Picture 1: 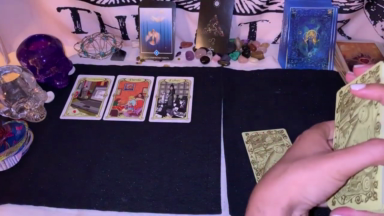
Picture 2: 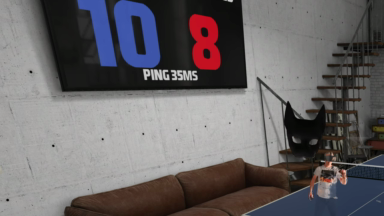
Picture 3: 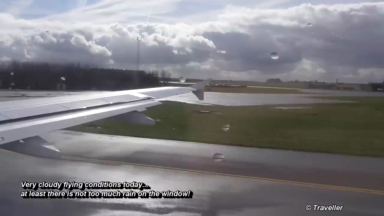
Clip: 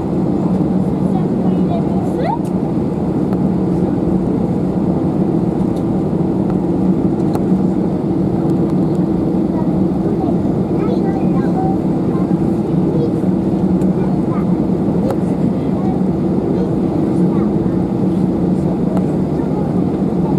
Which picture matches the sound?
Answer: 3